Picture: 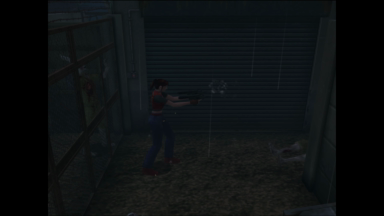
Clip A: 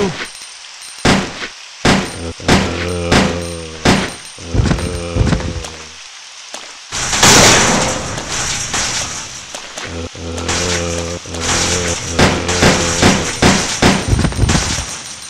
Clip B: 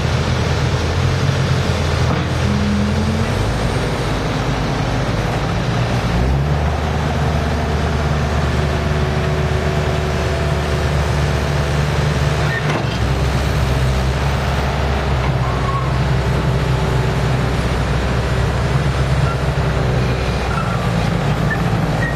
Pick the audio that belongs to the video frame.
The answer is A